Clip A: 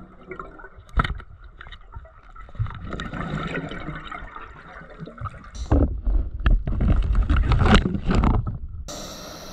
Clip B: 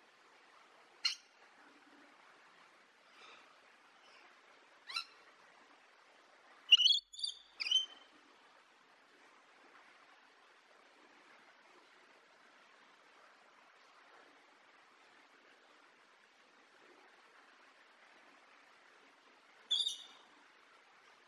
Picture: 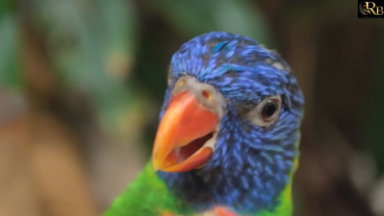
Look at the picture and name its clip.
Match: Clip B